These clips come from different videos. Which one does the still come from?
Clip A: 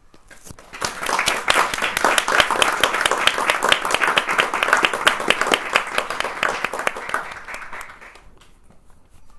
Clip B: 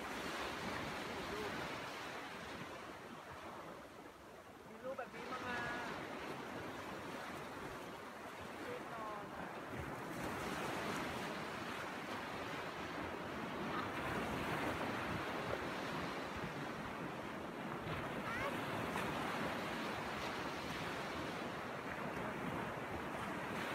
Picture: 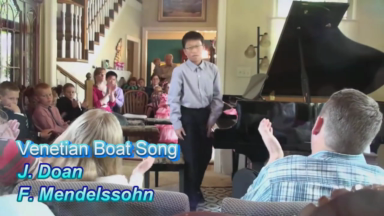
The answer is A